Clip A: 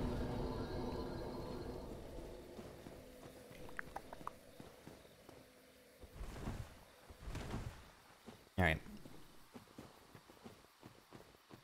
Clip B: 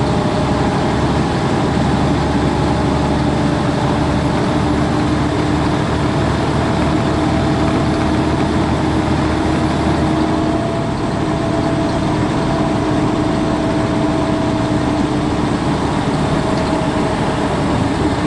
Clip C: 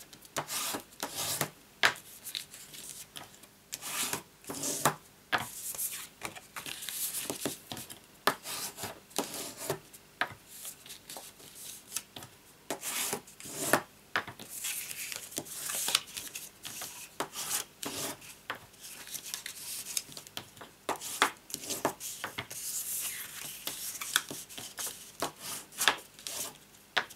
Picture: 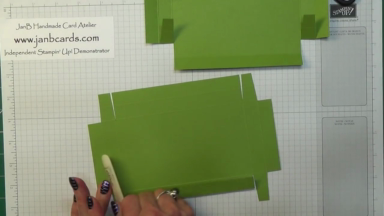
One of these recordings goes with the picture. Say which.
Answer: C